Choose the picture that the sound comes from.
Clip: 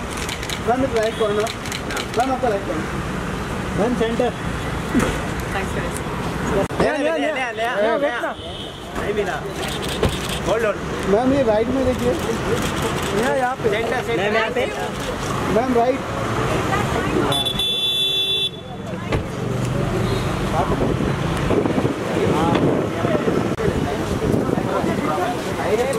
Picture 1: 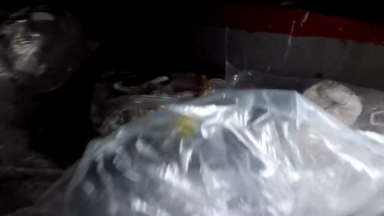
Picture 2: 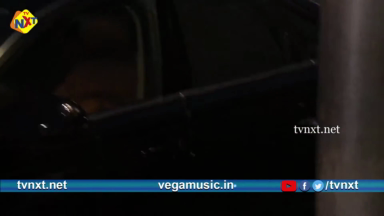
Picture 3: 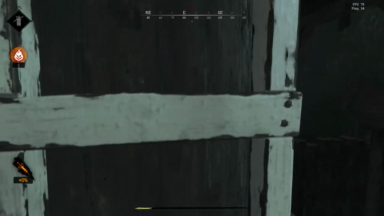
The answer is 2